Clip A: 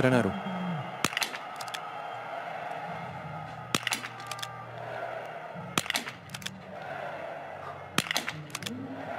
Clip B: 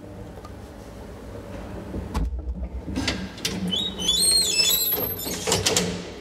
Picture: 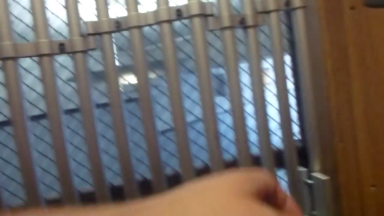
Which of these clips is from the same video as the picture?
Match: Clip B